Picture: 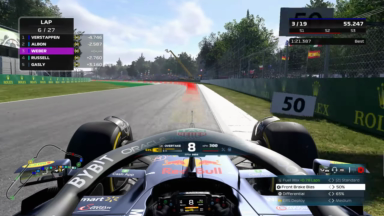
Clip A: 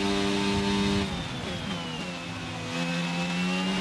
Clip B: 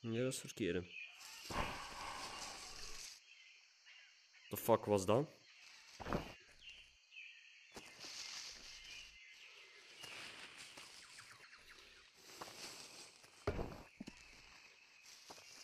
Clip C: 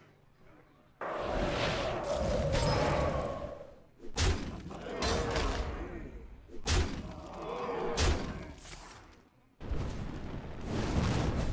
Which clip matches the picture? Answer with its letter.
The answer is A